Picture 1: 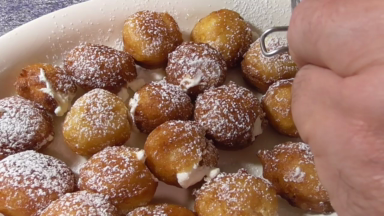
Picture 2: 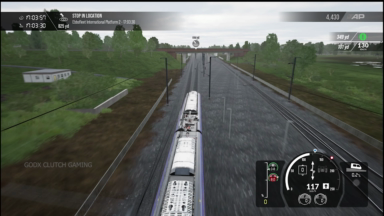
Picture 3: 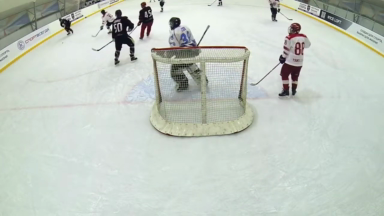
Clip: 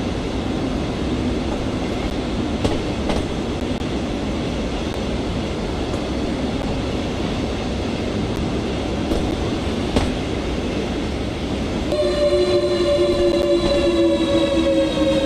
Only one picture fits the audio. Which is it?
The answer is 2